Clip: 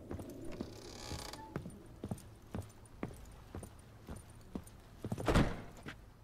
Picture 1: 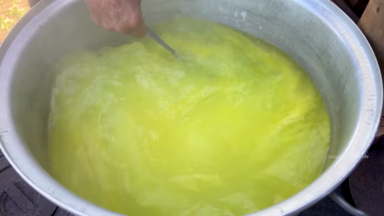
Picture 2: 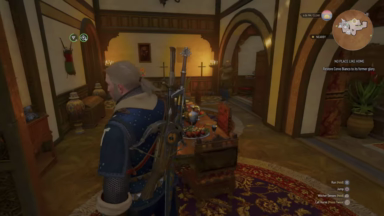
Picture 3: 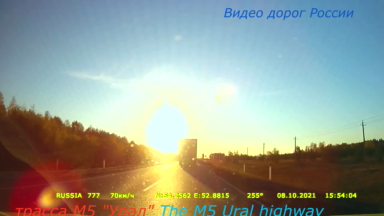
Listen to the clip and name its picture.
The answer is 2